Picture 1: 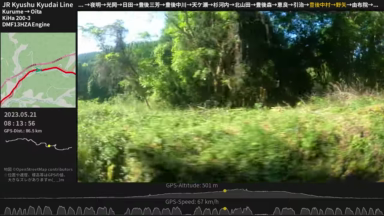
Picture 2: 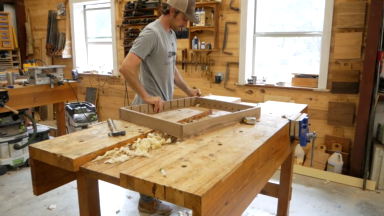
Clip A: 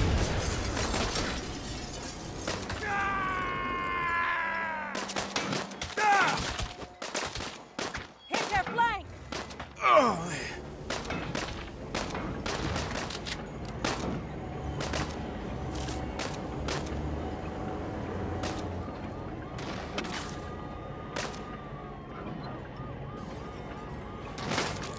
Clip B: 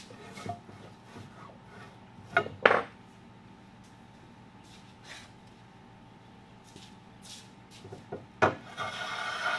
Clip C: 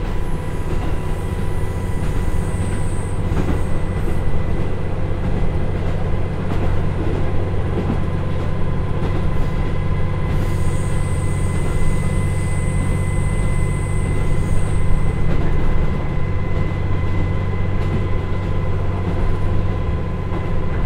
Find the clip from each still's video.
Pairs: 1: C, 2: B